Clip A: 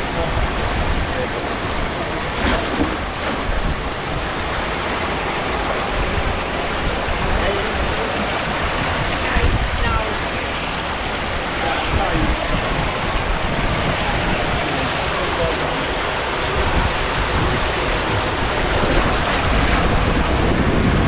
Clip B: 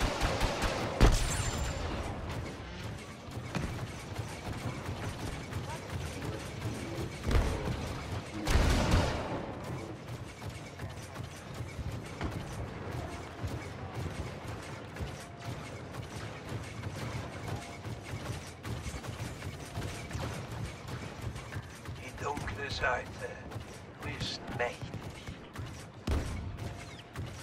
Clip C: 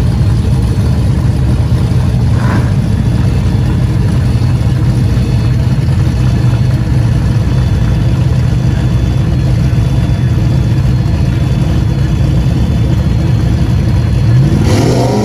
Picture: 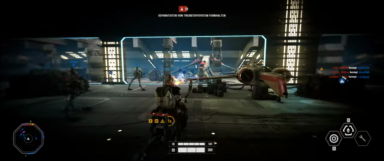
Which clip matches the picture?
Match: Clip B